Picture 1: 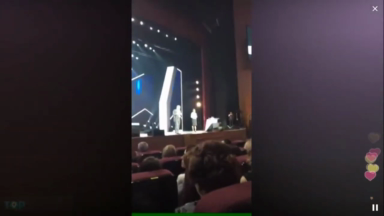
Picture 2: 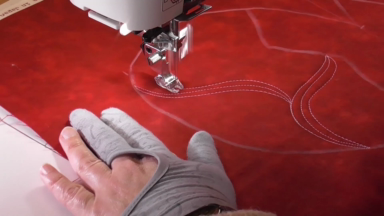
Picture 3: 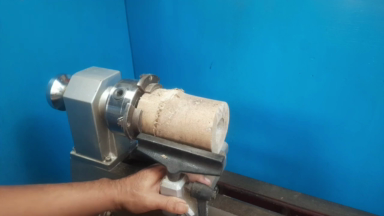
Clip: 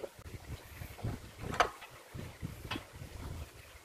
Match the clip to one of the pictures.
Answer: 3